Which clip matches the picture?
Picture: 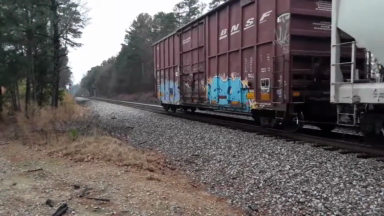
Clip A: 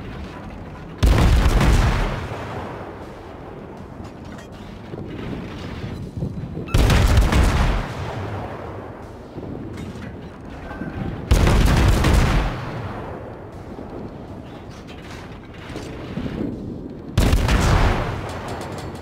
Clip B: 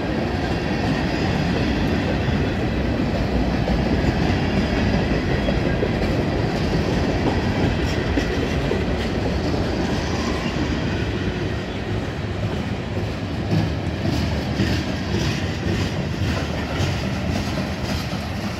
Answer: B